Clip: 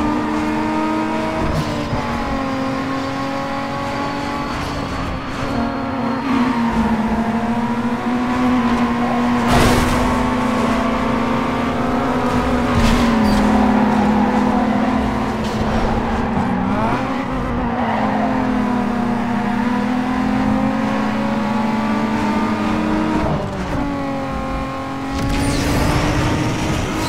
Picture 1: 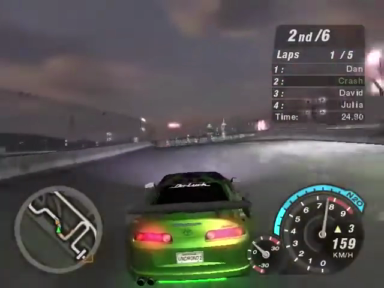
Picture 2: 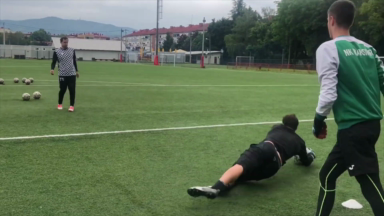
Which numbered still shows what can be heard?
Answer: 1